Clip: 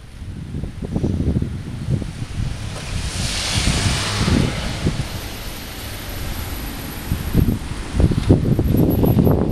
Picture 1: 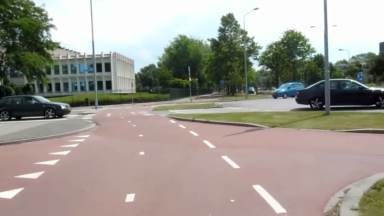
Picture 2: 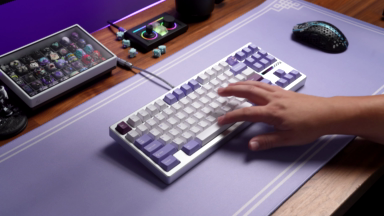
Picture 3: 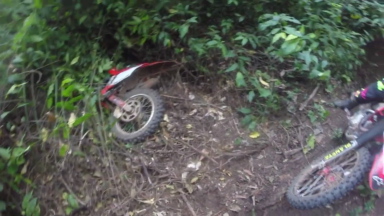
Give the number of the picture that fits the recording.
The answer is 1